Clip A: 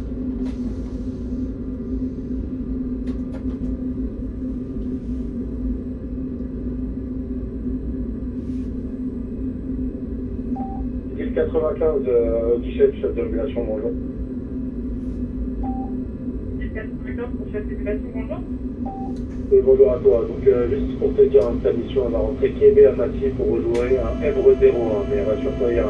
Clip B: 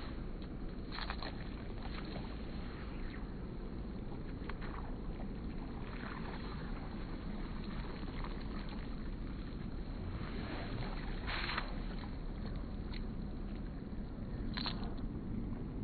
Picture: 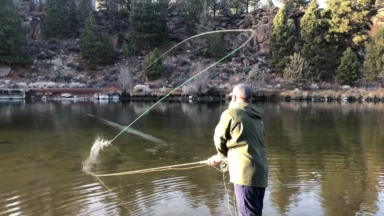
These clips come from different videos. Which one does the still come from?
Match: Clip B